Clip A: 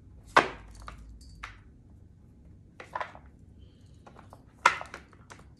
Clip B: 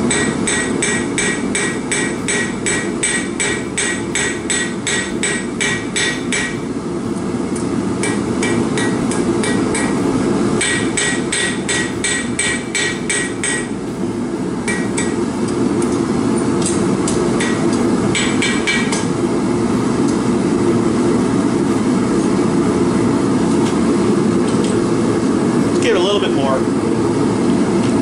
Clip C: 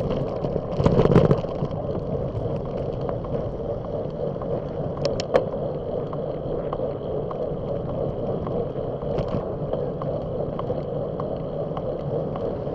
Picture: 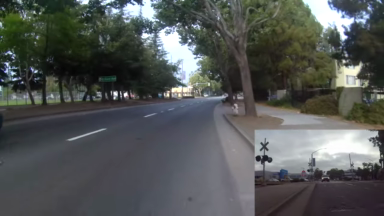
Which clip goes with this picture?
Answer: C